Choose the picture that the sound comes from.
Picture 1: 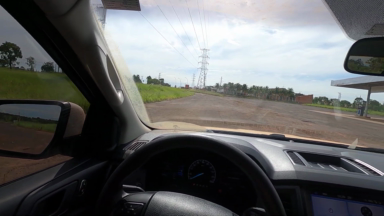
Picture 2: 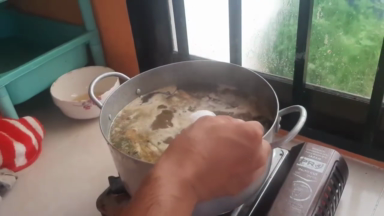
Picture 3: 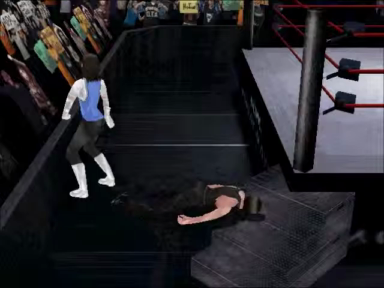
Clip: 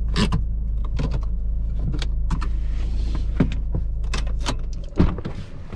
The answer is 1